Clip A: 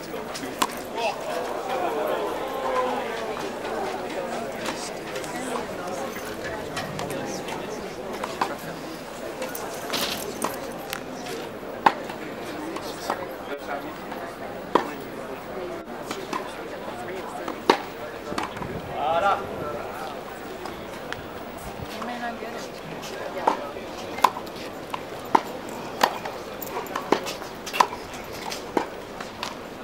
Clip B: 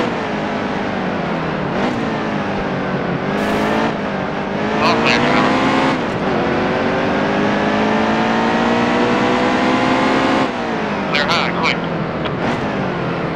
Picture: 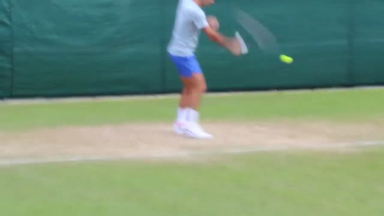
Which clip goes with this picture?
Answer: A